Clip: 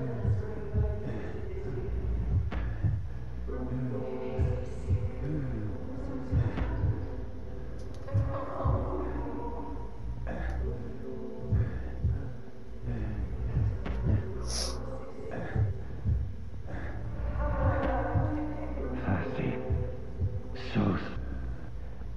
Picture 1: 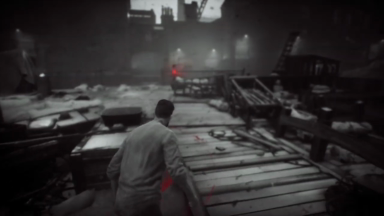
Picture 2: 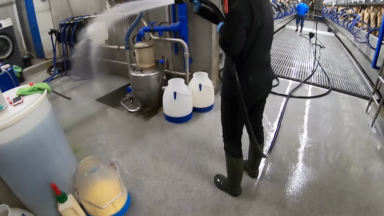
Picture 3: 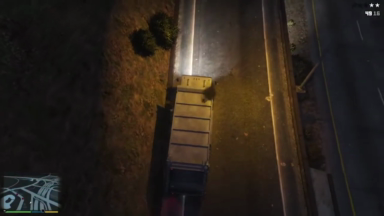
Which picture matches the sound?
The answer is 1